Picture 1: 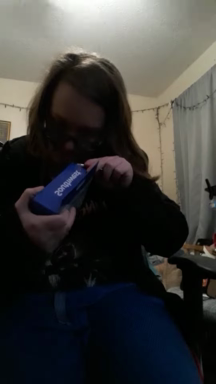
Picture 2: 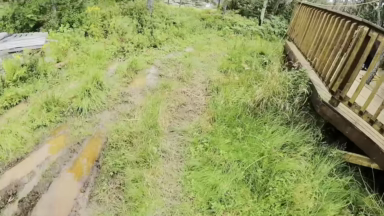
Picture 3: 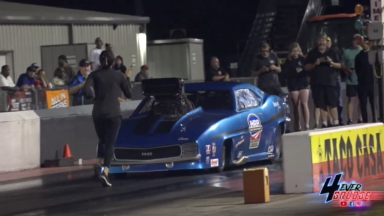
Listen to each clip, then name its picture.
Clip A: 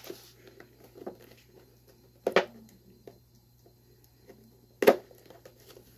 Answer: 1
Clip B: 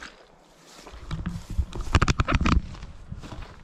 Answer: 2